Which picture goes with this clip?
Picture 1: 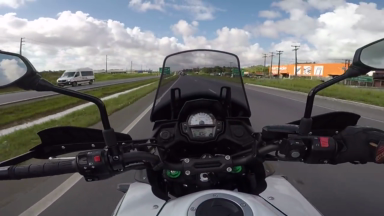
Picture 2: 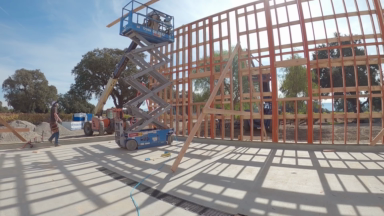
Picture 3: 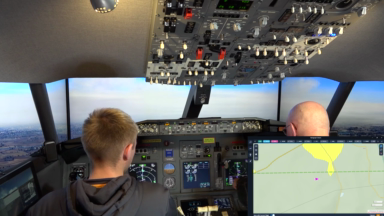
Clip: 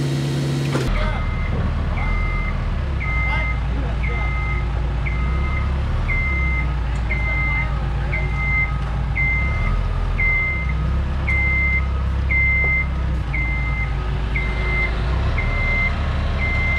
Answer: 2